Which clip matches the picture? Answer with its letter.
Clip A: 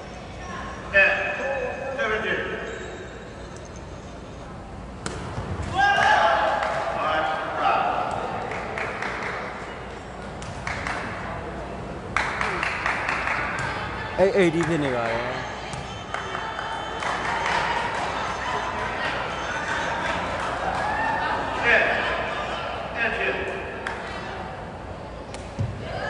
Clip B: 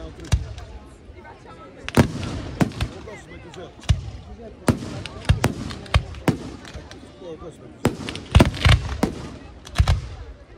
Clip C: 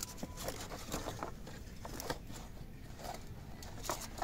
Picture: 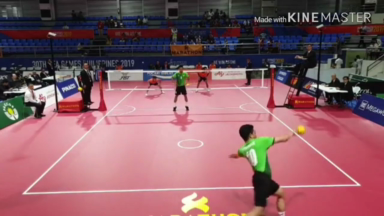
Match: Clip A